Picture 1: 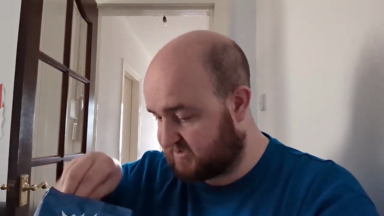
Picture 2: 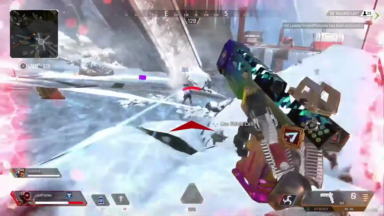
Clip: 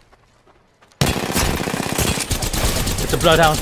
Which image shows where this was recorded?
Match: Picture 2